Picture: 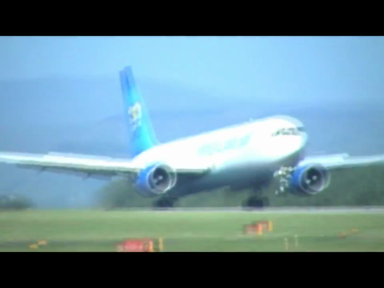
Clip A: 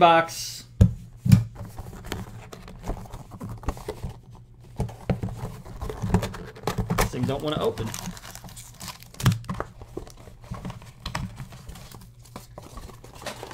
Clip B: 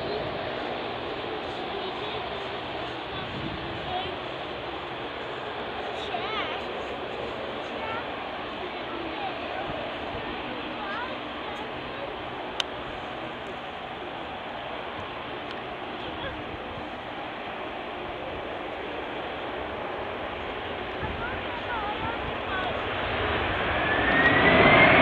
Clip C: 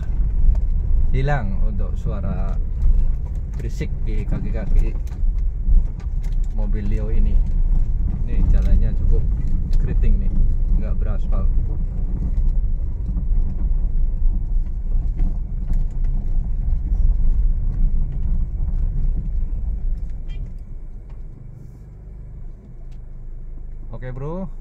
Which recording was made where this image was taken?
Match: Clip B